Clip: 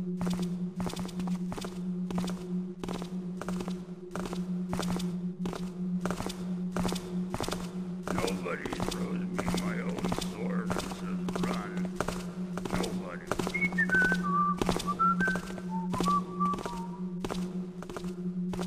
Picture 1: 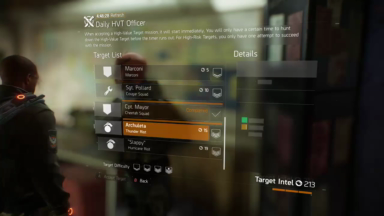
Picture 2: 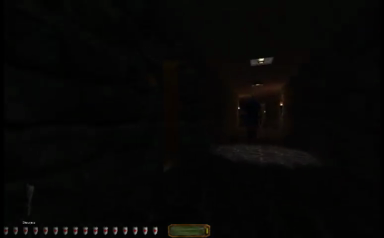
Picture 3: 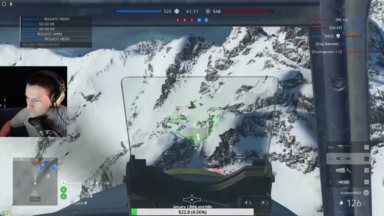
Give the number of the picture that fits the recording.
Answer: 2